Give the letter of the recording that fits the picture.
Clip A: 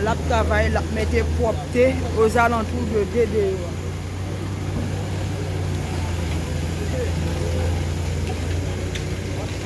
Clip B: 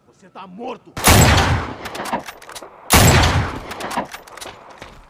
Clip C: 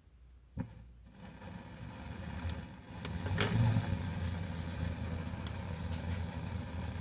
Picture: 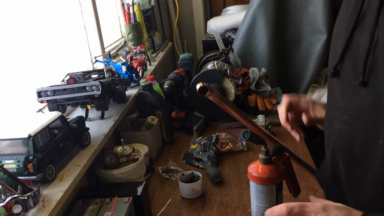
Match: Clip C